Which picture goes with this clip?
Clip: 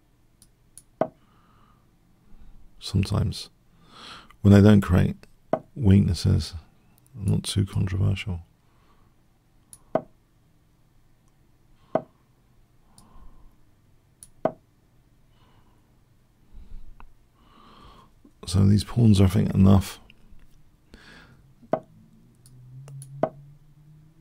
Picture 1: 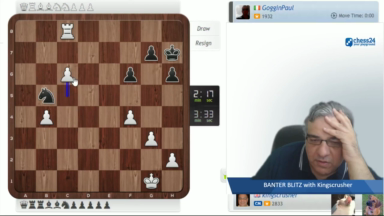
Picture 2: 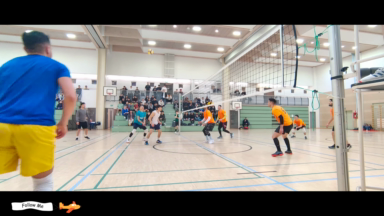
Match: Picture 1